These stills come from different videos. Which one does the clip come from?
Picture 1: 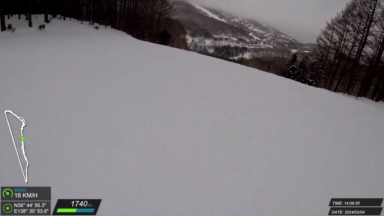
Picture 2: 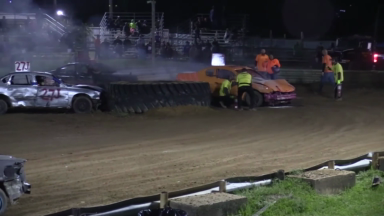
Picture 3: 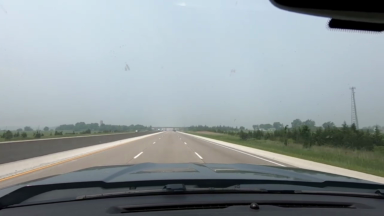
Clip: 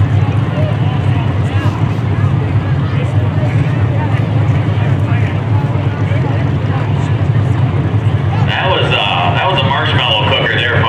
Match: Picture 2